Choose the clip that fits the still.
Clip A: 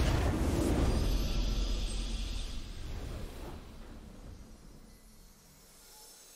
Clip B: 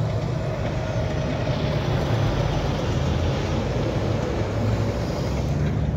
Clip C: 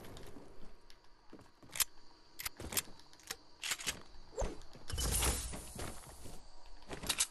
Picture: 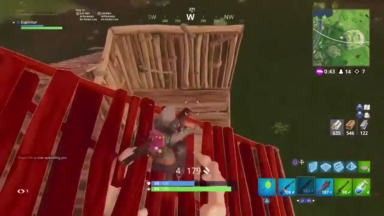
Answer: C